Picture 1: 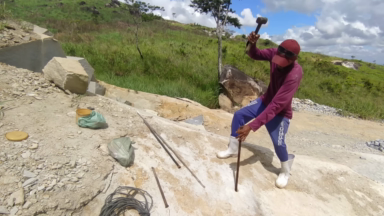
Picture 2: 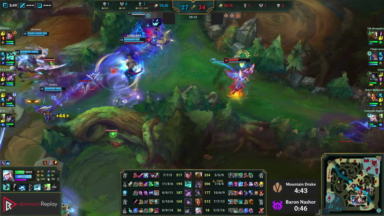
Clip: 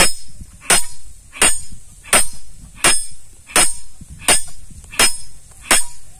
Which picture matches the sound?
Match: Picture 1